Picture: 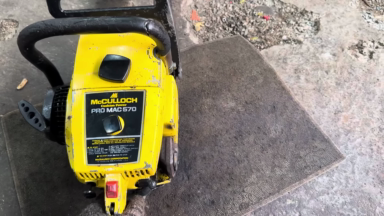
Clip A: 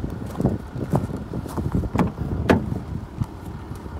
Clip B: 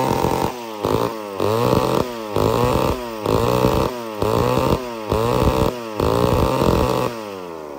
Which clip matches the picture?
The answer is B